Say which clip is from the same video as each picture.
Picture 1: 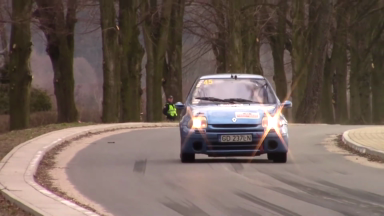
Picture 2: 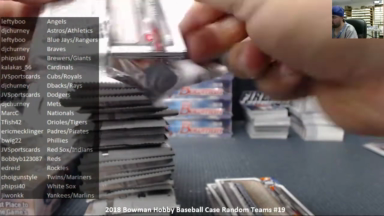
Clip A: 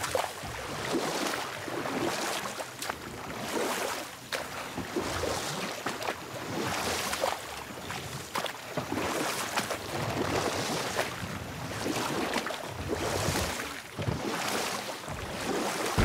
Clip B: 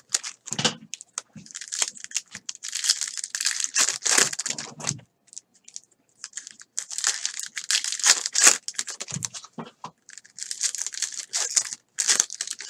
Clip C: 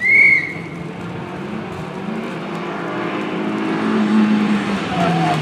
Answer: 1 C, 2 B